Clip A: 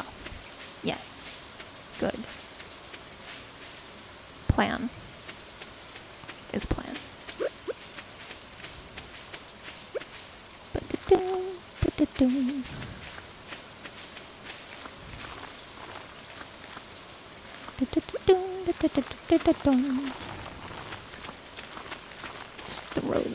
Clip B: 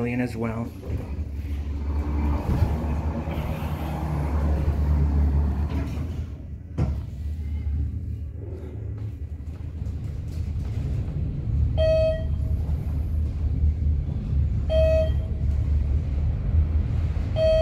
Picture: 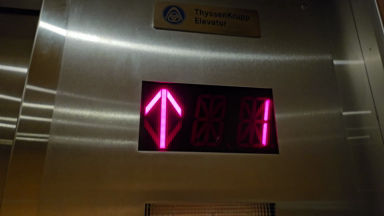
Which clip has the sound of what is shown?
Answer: B